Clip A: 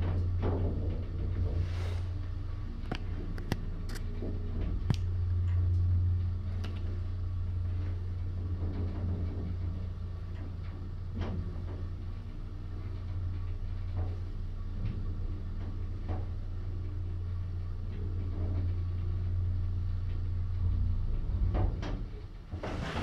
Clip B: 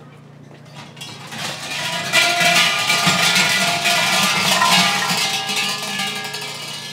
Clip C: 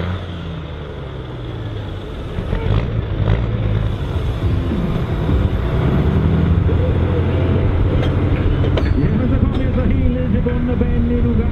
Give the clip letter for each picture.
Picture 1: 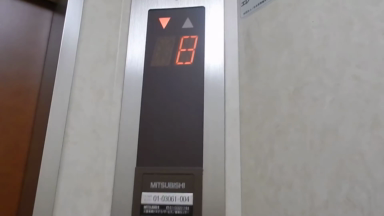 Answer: A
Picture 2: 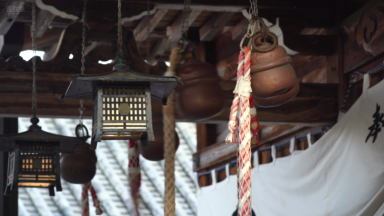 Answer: B